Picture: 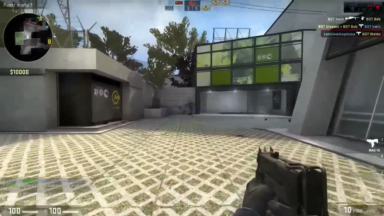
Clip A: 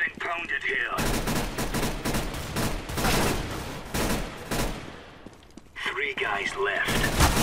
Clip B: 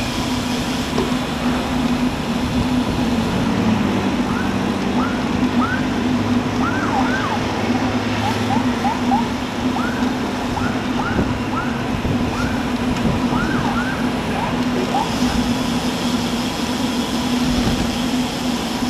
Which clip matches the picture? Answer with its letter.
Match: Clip A